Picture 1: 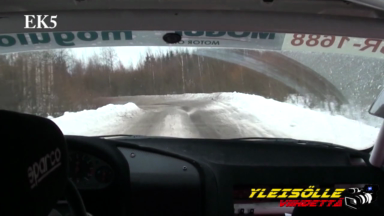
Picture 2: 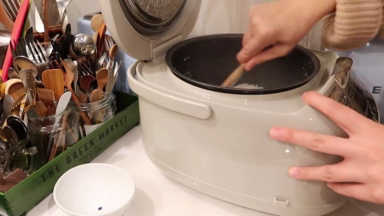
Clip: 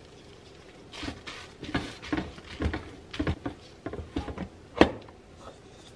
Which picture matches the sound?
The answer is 2